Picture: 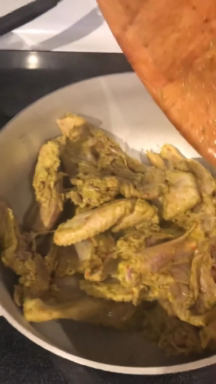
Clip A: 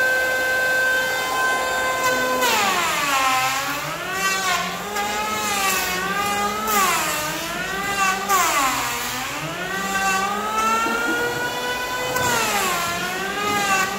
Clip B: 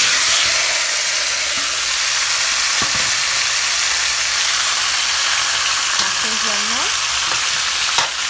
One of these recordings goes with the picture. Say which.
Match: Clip B